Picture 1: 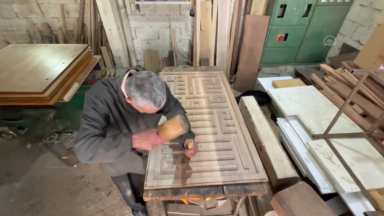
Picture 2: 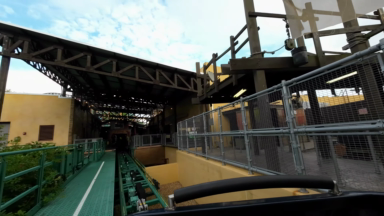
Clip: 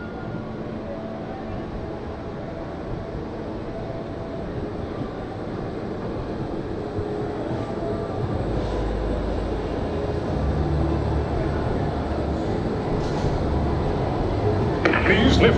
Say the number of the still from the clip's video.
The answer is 2